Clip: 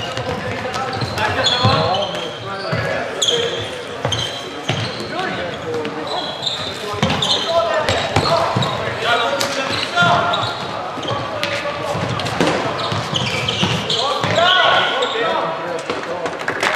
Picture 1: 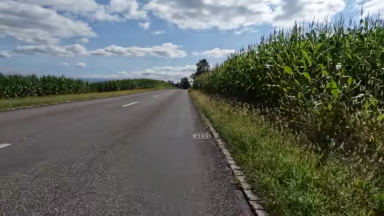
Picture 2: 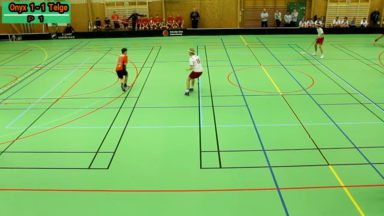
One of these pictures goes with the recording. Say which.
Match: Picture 2